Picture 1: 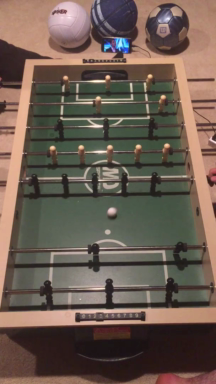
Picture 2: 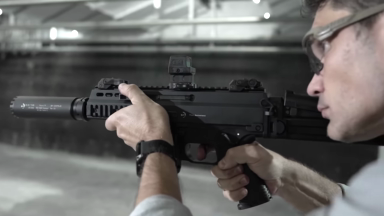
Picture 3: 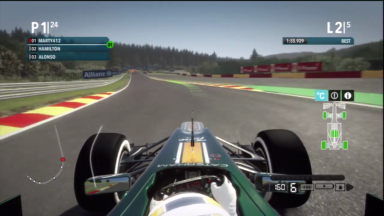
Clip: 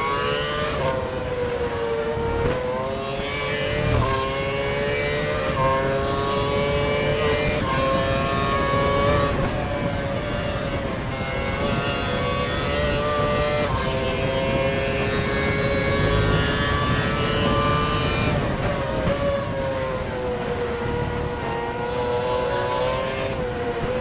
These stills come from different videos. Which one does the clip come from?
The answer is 3